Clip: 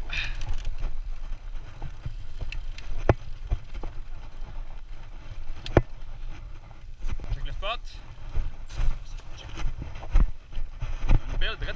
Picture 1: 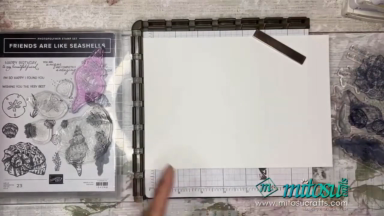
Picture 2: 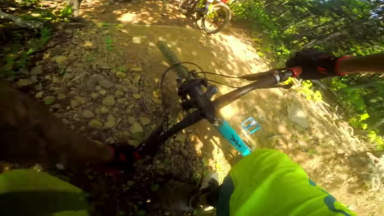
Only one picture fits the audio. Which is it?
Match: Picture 2